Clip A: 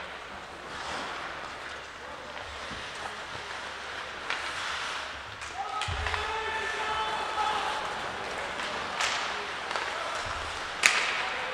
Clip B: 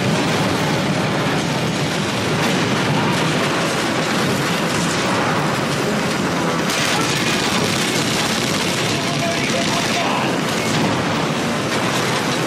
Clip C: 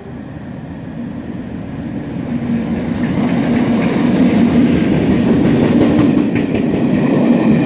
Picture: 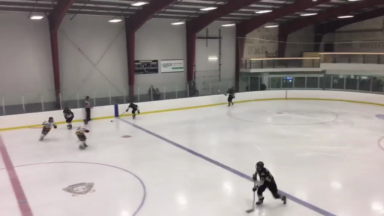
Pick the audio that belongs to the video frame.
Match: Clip A